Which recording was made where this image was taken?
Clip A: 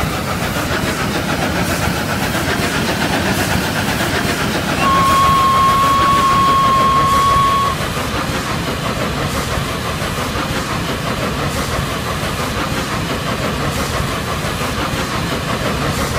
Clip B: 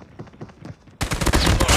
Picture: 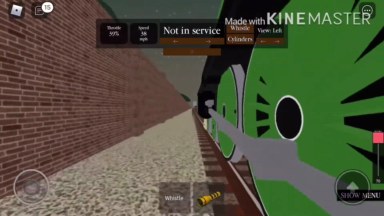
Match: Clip A